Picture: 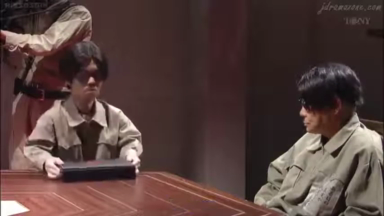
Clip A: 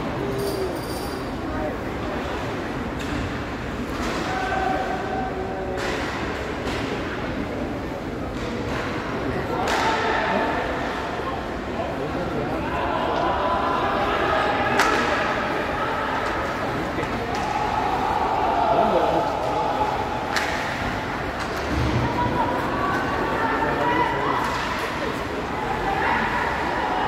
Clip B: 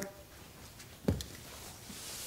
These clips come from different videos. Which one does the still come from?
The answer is B